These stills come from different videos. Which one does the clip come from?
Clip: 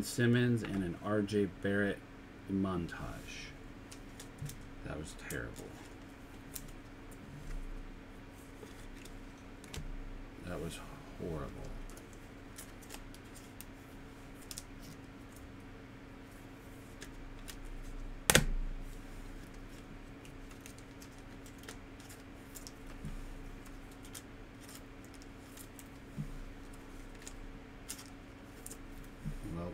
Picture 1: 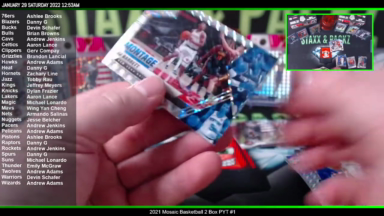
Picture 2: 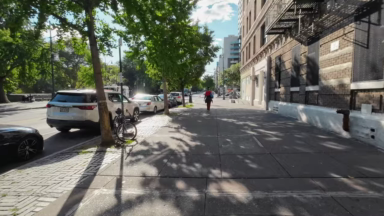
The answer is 1